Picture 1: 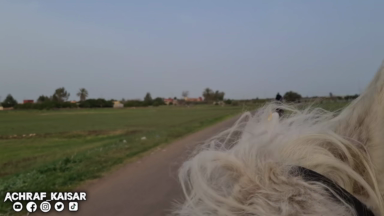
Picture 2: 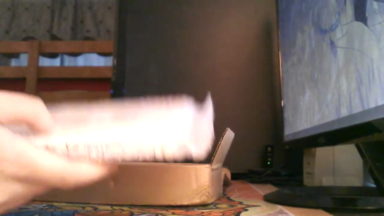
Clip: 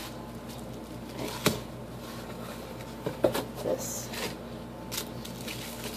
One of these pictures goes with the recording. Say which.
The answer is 2